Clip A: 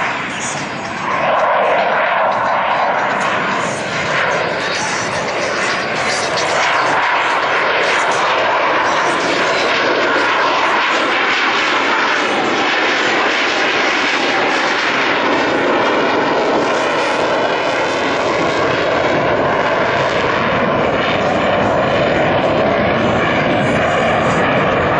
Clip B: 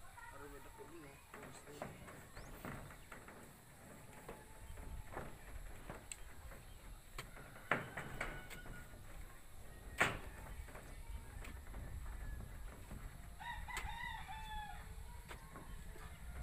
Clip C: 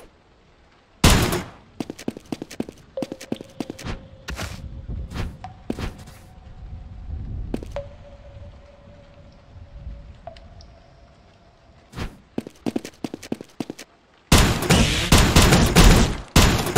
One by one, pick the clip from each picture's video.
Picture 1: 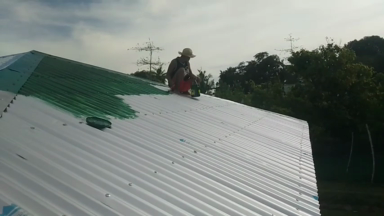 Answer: B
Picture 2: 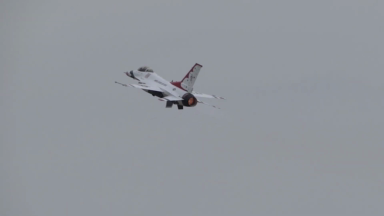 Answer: A